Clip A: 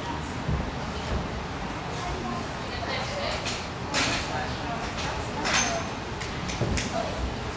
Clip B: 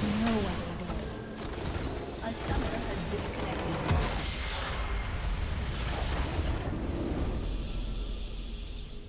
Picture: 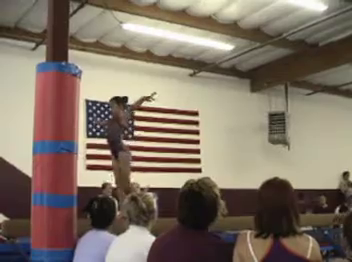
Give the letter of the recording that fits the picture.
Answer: A